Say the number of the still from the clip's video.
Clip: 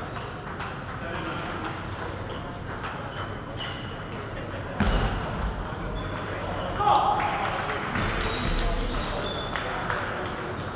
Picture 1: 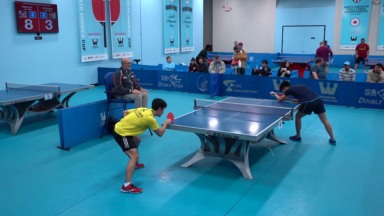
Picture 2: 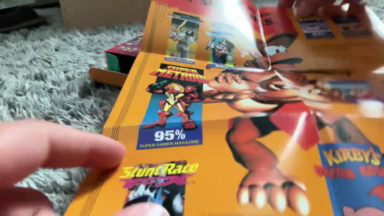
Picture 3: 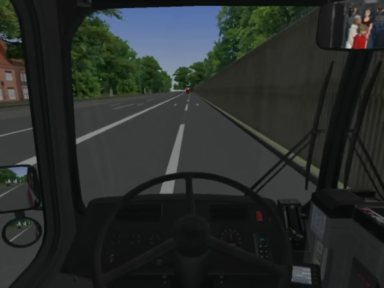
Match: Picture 1